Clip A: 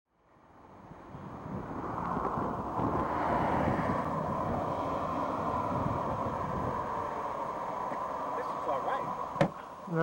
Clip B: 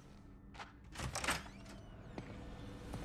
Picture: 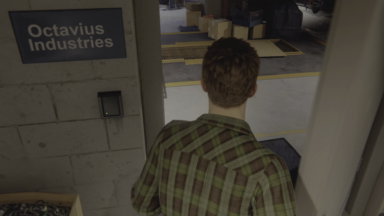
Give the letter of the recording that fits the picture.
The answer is B